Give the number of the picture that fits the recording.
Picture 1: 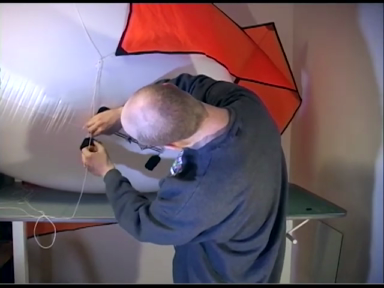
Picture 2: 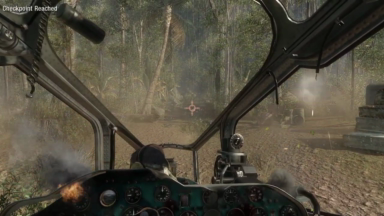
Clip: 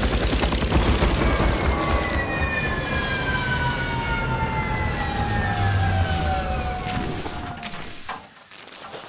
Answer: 2